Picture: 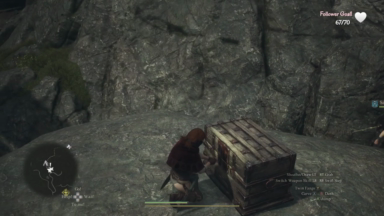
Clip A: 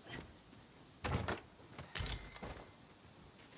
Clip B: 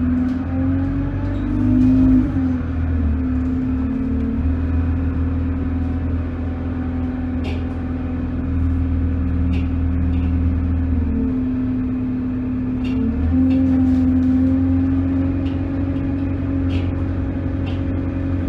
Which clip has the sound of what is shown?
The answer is A